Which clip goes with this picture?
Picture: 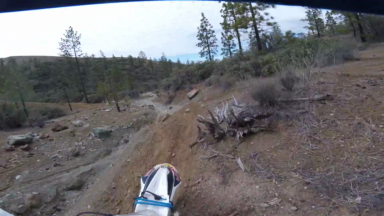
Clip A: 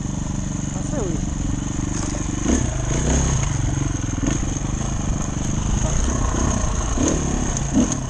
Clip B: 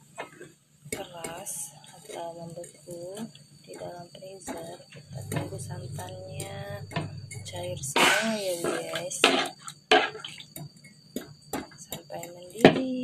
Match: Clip A